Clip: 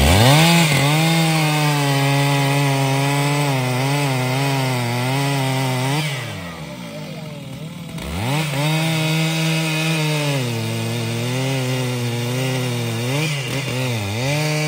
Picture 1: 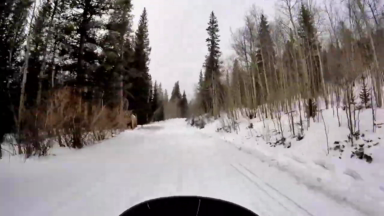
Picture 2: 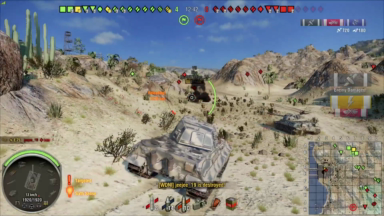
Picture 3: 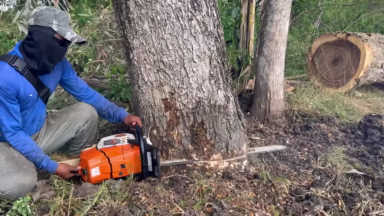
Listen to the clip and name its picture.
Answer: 3